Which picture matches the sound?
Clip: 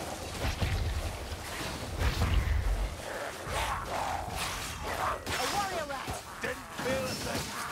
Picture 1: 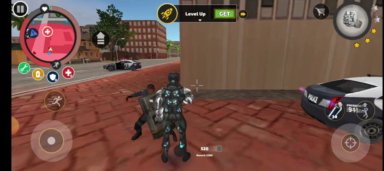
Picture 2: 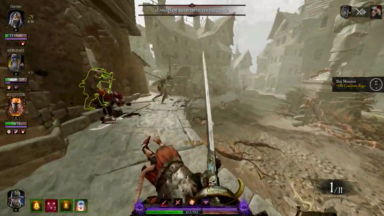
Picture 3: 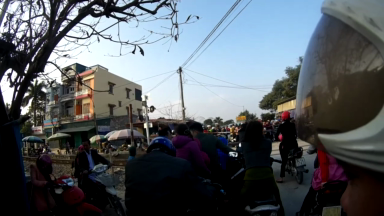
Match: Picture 2